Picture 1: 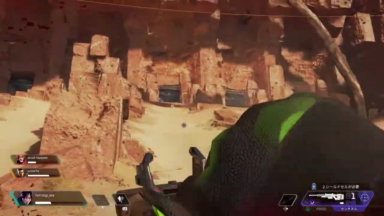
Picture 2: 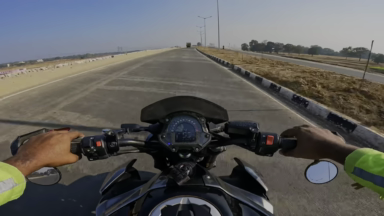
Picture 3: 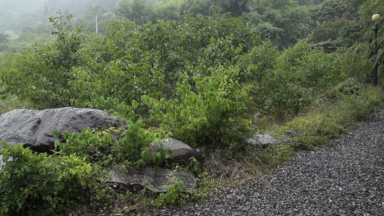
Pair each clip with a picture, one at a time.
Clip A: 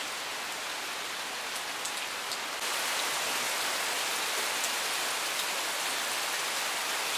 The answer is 3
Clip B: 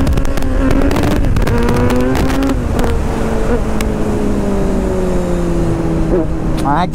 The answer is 2